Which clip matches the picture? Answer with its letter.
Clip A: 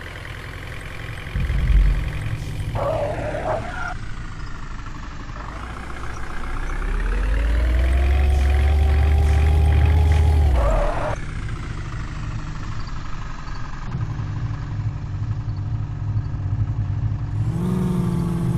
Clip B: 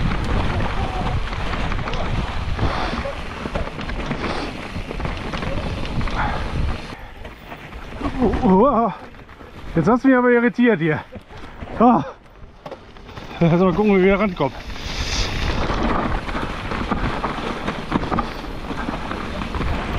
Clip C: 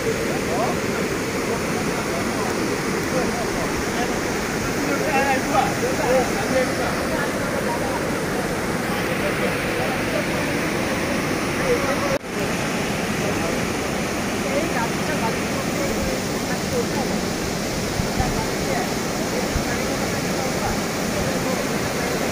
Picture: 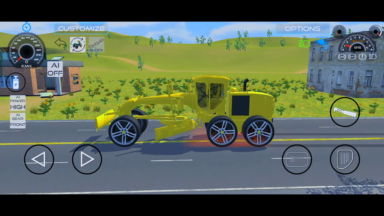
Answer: A